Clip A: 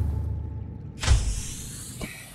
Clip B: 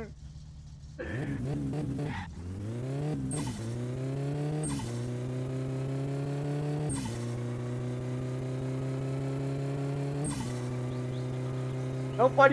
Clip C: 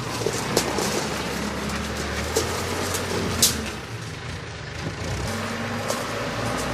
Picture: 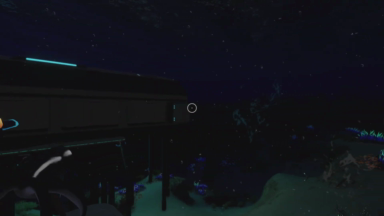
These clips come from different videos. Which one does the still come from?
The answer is A